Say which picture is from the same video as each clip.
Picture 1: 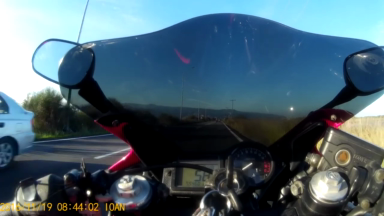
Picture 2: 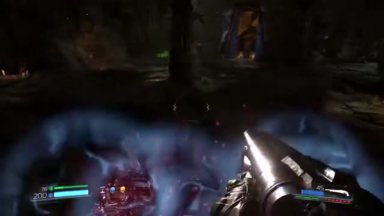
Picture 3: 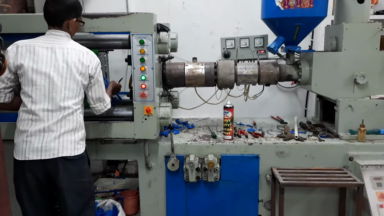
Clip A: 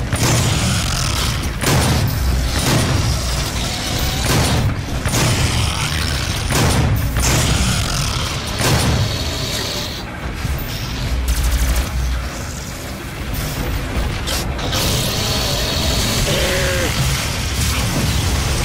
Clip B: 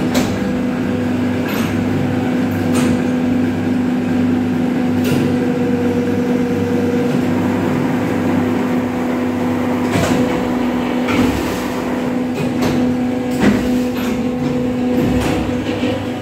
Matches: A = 2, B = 3